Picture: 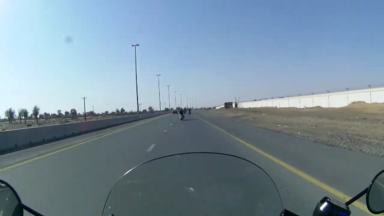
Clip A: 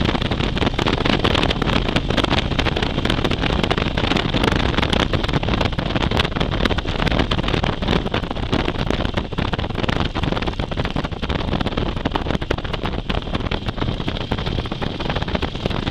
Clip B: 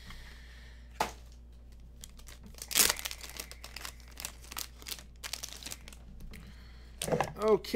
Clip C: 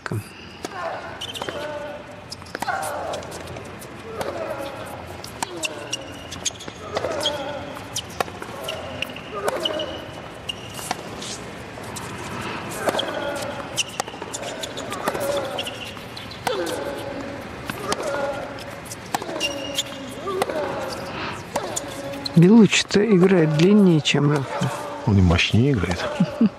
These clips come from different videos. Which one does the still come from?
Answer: A